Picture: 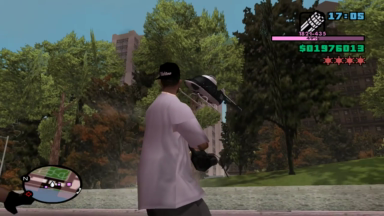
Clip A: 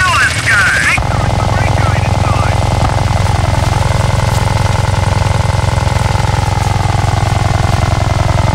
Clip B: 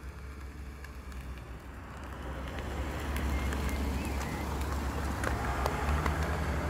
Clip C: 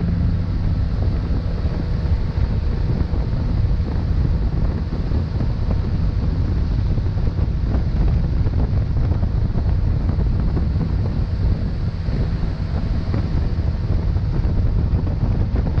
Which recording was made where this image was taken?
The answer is A